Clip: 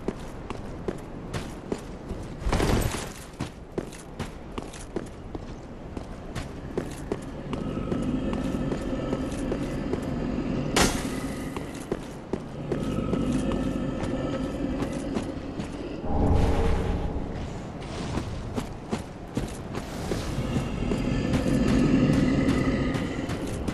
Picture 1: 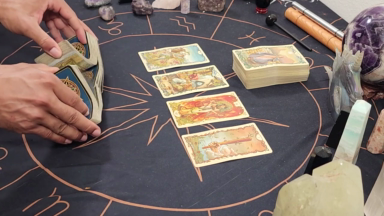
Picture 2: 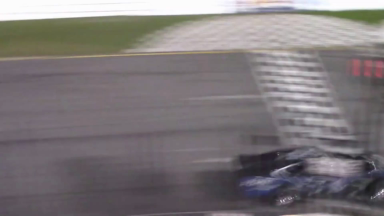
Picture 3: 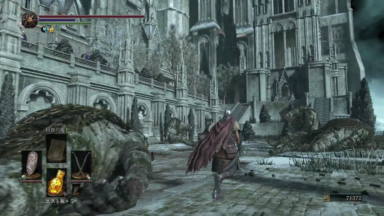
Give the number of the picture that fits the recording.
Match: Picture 3